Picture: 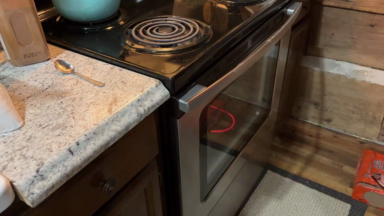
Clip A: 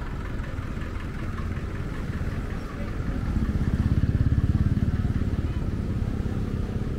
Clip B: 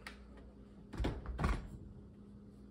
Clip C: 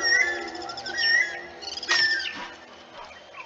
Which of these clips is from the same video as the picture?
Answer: B